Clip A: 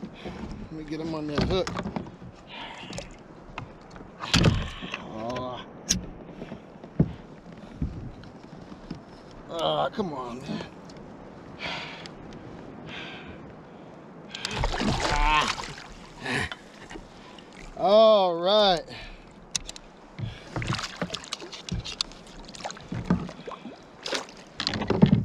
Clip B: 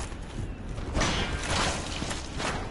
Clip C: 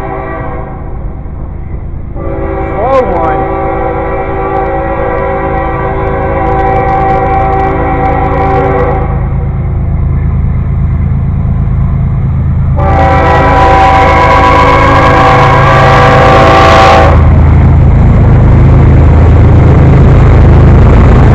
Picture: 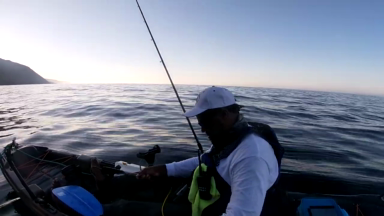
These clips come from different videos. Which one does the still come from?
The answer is A